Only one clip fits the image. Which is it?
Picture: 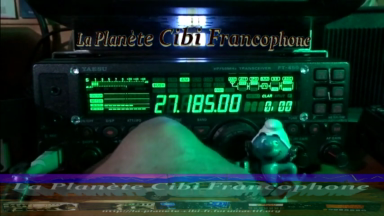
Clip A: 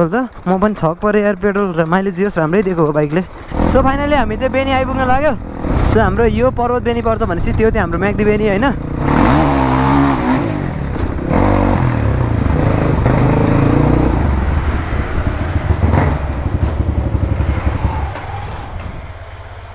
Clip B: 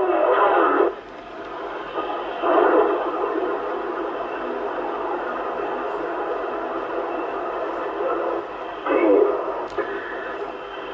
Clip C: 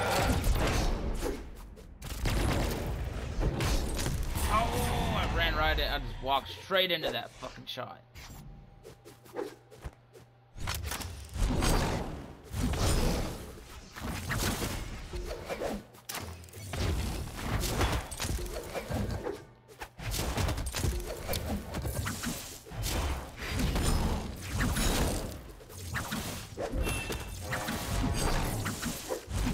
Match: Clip B